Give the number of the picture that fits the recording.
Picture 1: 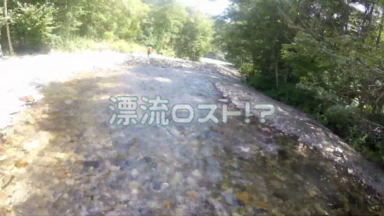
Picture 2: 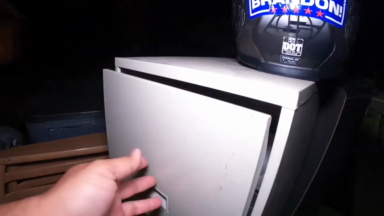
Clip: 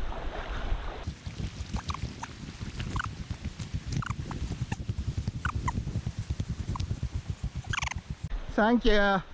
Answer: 1